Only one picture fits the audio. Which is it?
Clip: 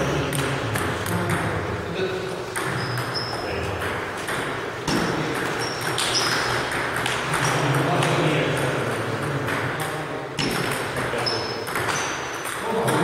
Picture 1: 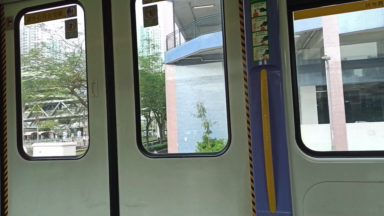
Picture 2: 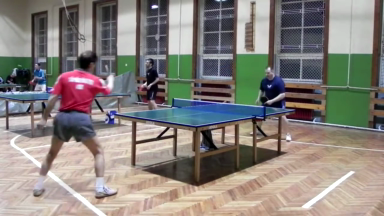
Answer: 2